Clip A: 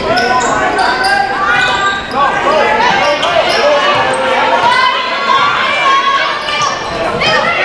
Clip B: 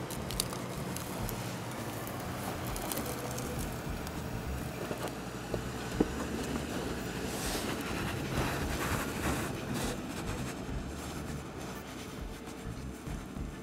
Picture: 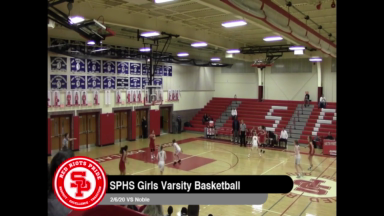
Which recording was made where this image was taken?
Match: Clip A